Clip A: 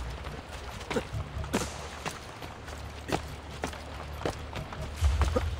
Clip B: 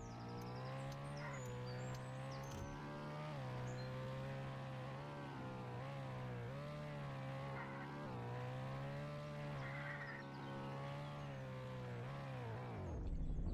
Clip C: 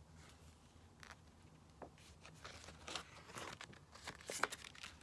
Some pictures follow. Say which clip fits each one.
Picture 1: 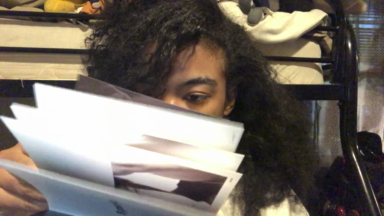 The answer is C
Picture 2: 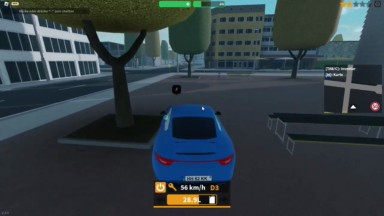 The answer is B